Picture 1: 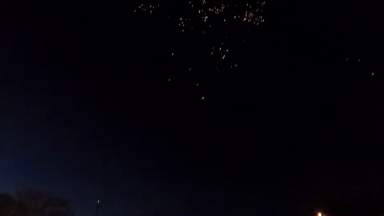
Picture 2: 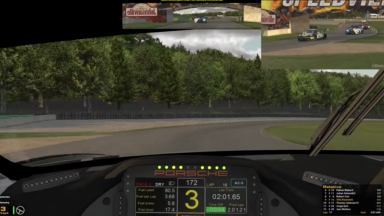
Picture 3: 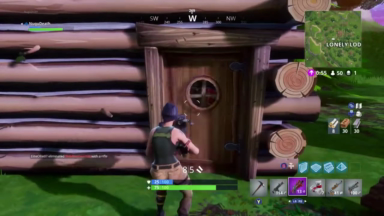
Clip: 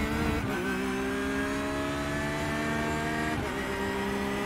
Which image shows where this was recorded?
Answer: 2